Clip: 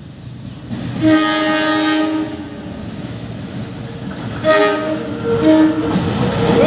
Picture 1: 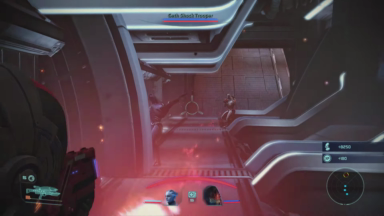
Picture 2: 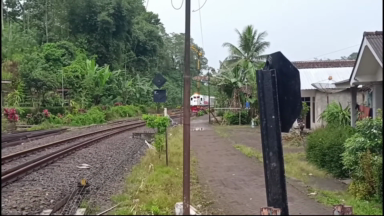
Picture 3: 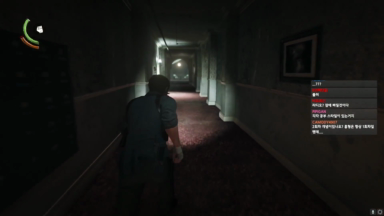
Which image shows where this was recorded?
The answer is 2